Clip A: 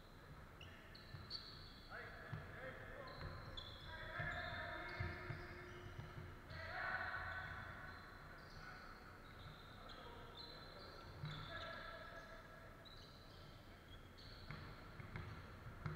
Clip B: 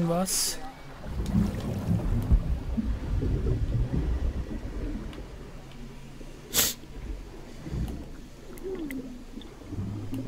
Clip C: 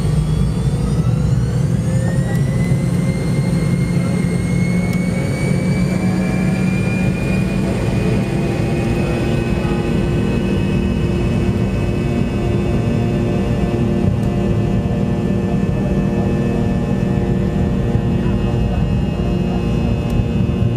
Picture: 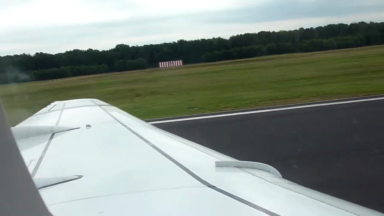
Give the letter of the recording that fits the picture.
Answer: C